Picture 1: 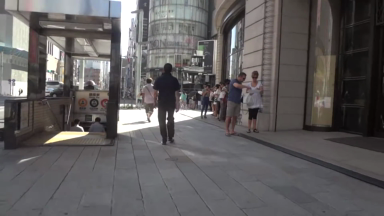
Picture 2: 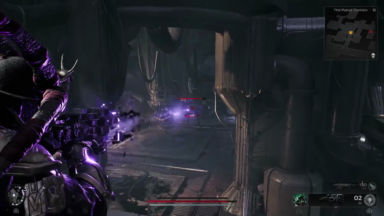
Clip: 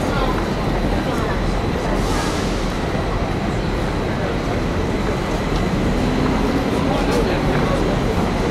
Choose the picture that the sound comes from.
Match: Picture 1